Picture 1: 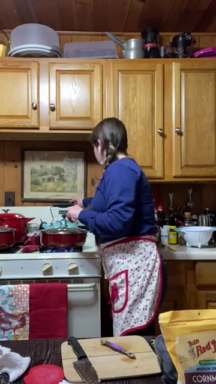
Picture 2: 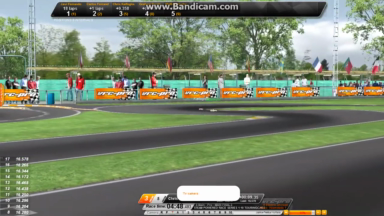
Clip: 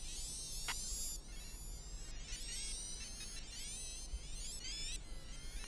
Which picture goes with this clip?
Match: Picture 2